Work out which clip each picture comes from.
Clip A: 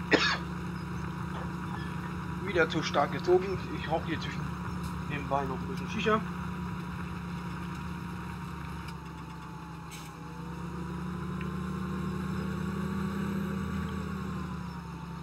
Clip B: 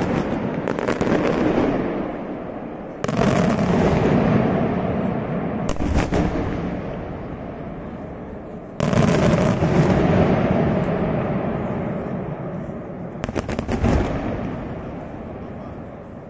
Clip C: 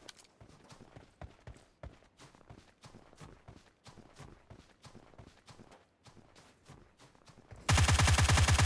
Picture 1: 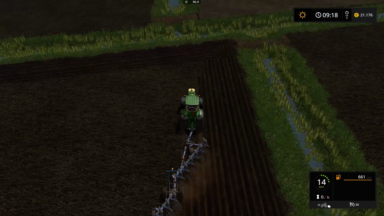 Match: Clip A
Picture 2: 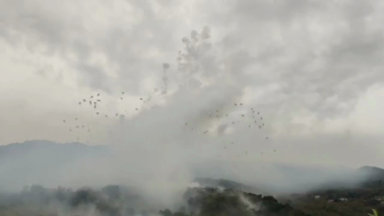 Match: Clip B